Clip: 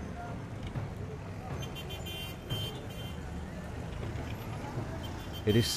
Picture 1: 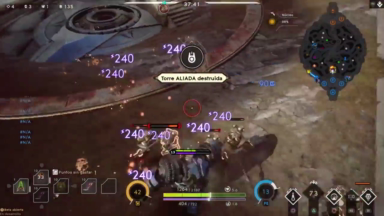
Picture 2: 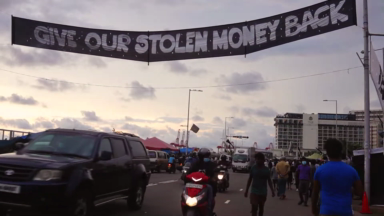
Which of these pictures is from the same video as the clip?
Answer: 2